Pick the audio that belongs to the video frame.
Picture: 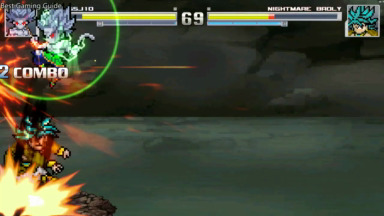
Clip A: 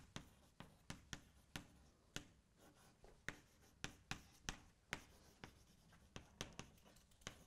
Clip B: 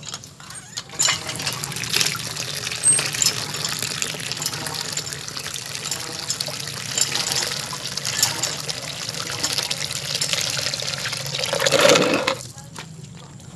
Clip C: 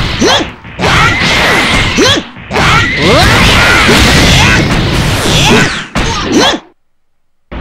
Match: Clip C